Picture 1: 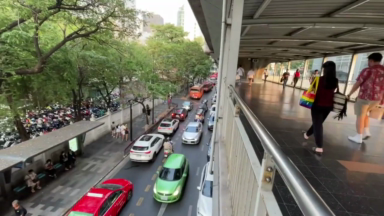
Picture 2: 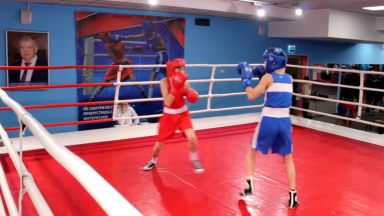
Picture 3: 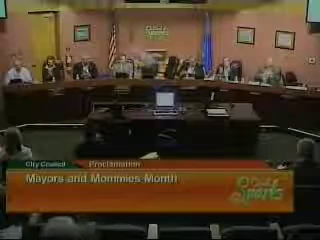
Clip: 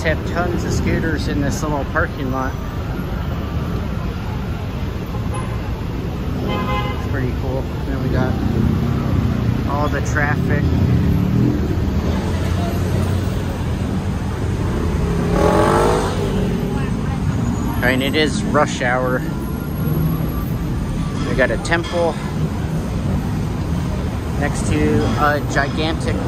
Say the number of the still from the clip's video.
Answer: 1